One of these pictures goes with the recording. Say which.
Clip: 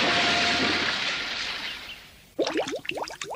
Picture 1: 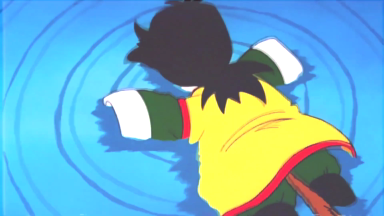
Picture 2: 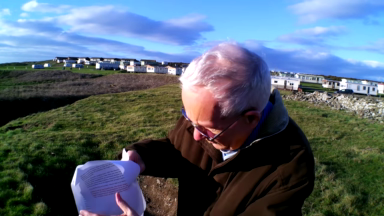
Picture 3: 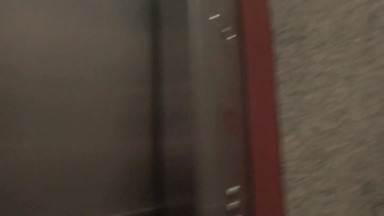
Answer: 1